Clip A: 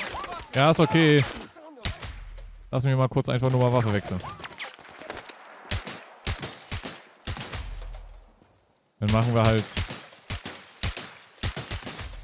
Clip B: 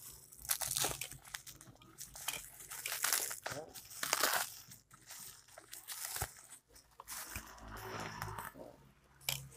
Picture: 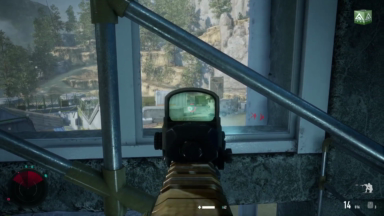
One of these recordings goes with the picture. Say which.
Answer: A